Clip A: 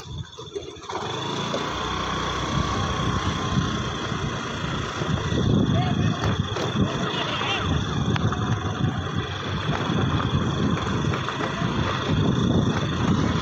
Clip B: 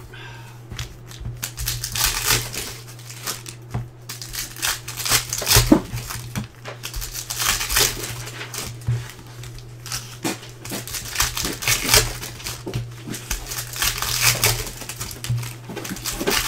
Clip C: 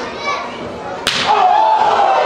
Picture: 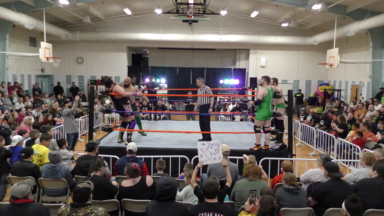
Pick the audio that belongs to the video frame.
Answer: C